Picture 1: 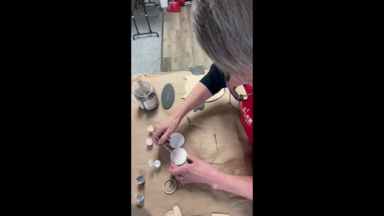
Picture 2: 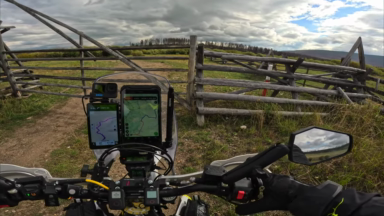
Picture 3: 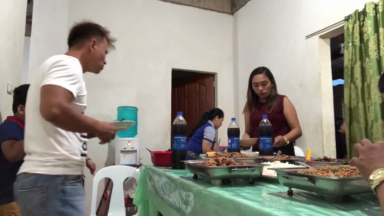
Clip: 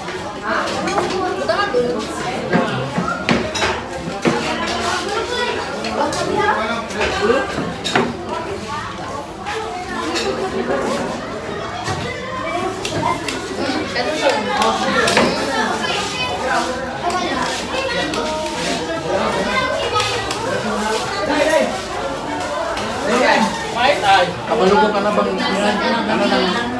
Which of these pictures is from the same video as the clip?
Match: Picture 3